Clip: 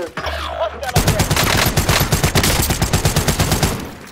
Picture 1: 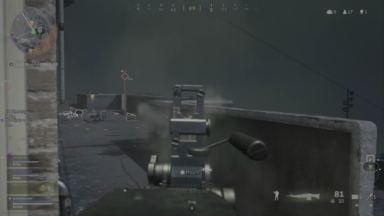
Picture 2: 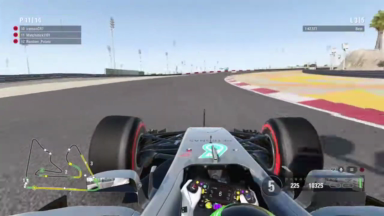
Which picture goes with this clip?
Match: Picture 1